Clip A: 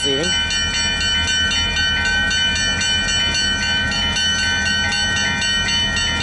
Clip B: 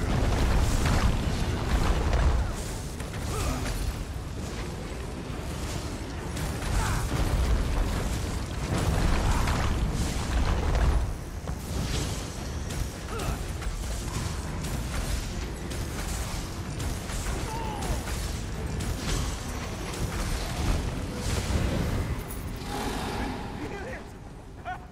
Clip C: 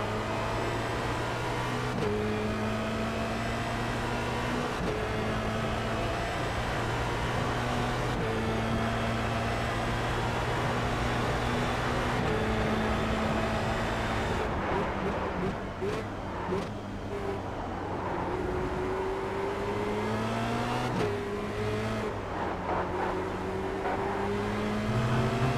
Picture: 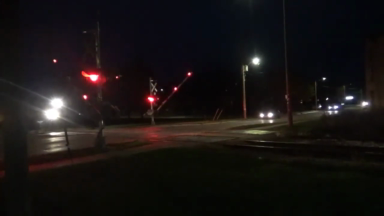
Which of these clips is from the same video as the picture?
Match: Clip A